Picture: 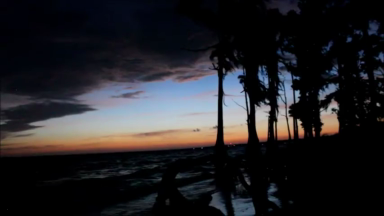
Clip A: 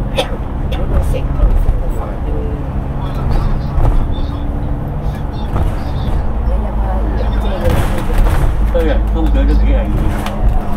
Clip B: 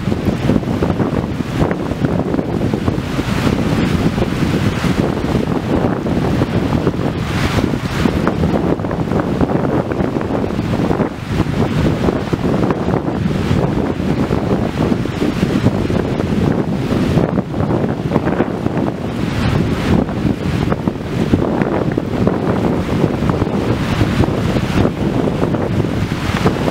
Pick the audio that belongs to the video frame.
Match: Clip B